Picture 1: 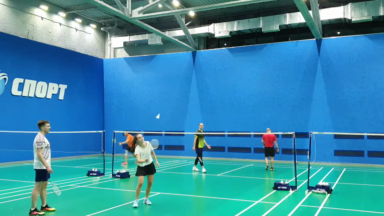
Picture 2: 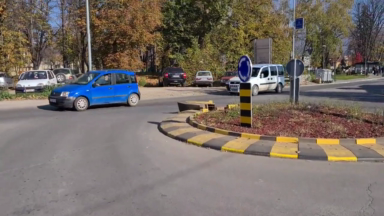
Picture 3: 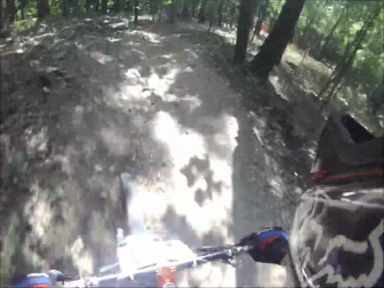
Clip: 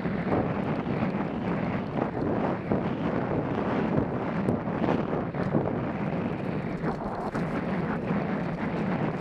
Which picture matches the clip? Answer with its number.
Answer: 3